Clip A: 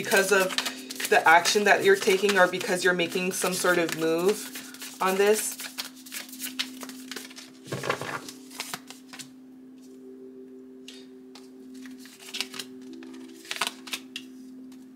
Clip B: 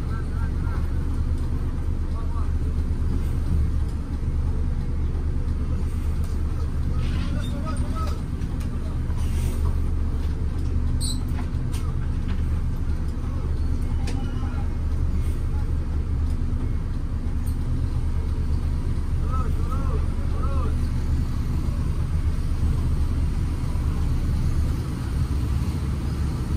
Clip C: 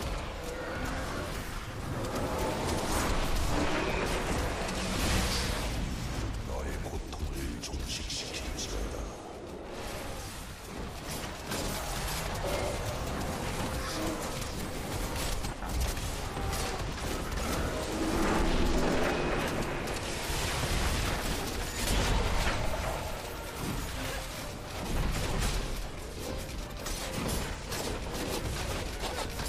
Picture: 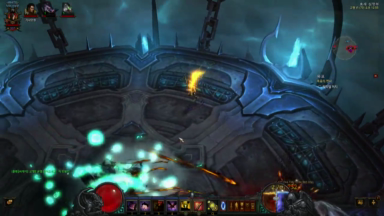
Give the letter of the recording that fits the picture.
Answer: C